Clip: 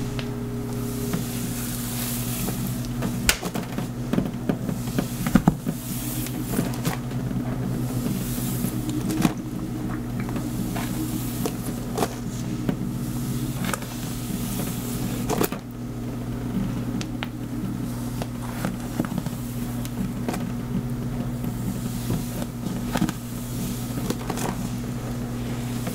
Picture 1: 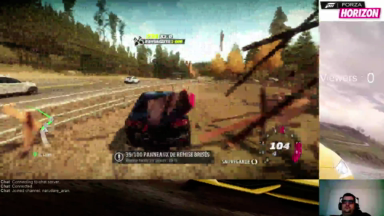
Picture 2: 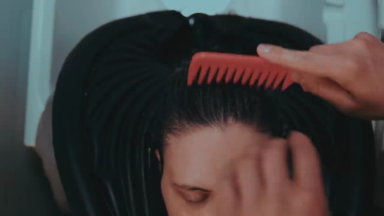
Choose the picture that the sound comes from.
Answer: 2